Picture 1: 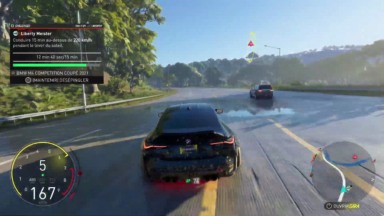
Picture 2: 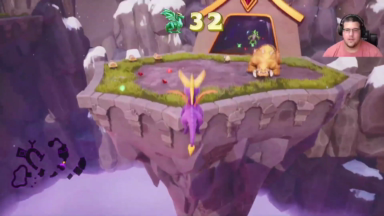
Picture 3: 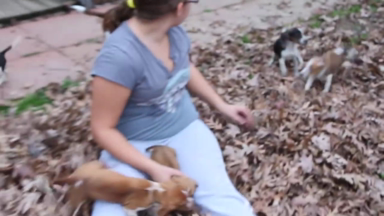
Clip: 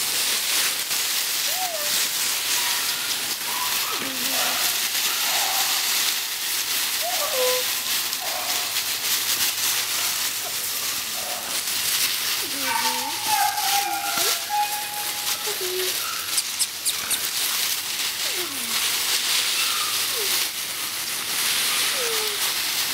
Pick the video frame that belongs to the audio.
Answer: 3